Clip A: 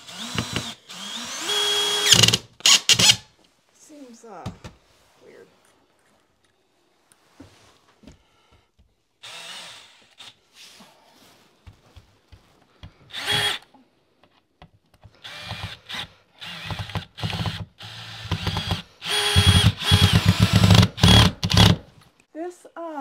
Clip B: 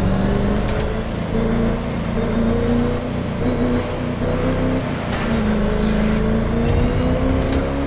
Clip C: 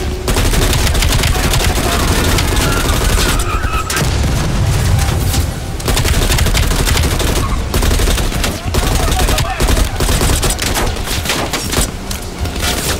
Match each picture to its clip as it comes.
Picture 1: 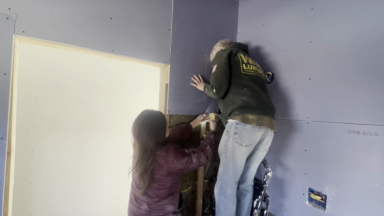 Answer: A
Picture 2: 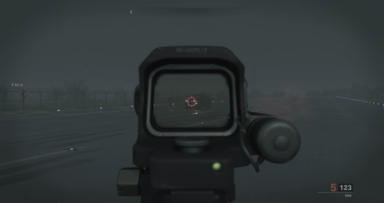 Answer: C